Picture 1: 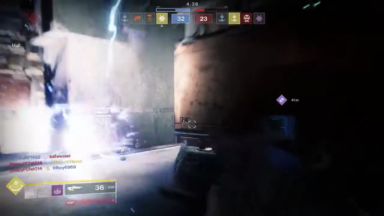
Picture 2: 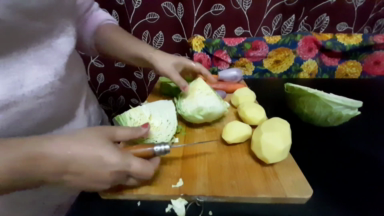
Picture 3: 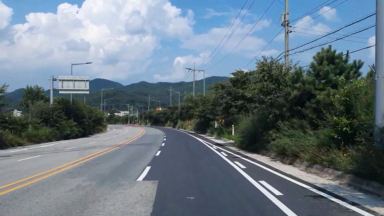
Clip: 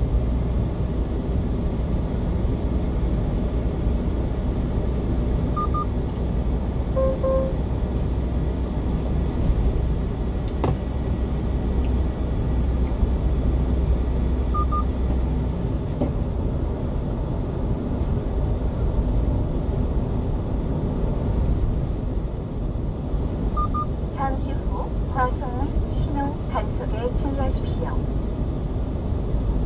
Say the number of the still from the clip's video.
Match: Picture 3